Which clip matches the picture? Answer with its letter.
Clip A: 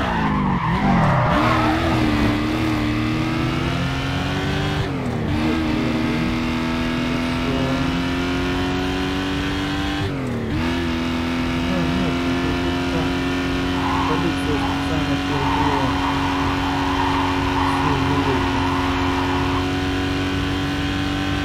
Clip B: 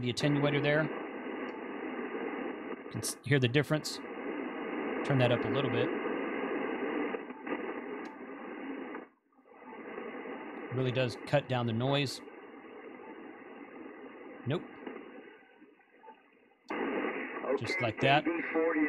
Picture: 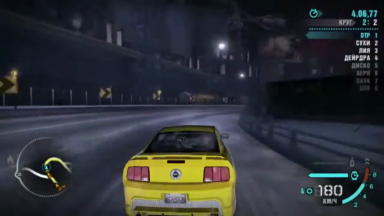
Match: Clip A